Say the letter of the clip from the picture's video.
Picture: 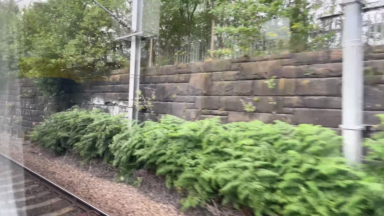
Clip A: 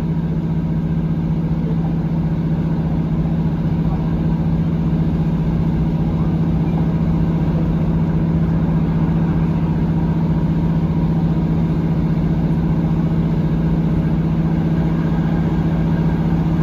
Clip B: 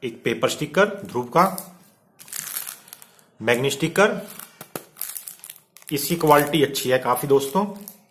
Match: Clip A